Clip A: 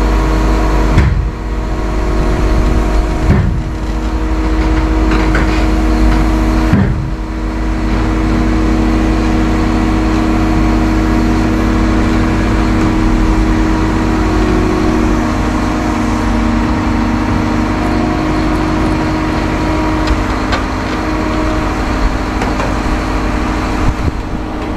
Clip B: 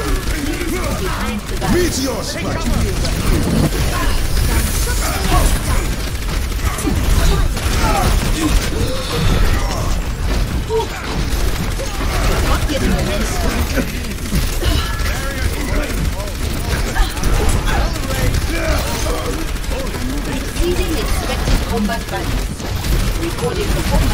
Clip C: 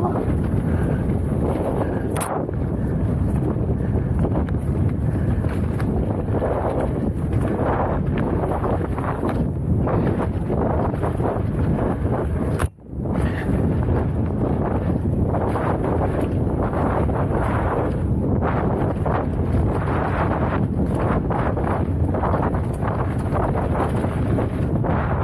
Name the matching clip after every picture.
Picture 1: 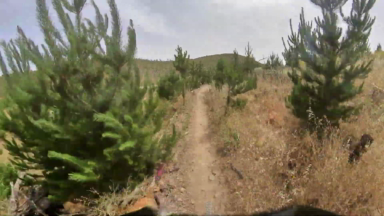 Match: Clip C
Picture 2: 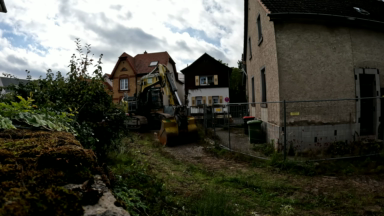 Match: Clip A